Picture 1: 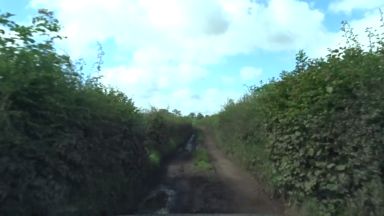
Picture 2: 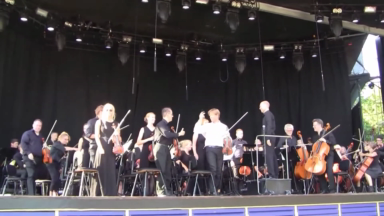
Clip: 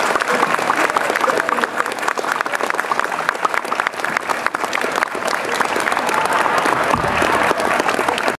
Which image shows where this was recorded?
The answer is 2